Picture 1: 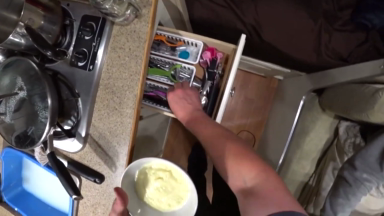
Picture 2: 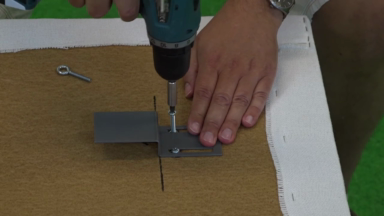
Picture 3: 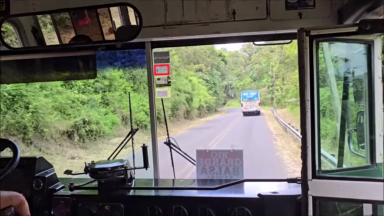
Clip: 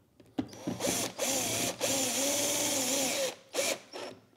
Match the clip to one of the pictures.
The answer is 2